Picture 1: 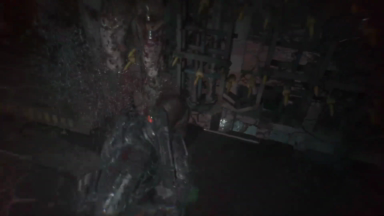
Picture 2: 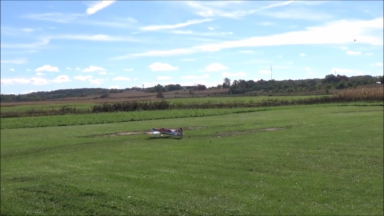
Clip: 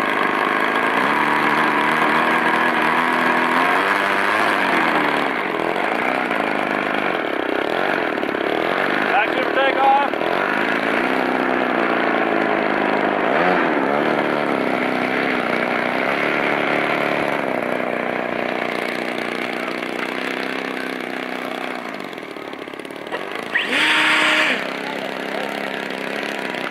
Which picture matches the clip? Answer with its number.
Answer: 2